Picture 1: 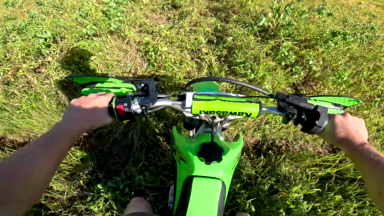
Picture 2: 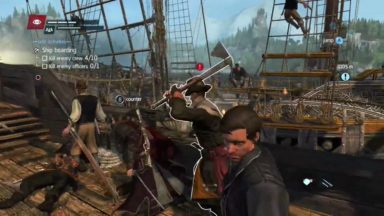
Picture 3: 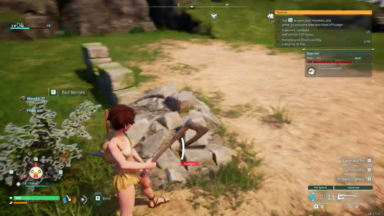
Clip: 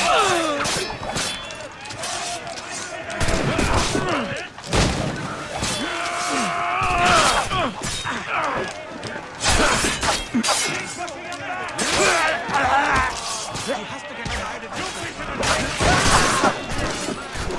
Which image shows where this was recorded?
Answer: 2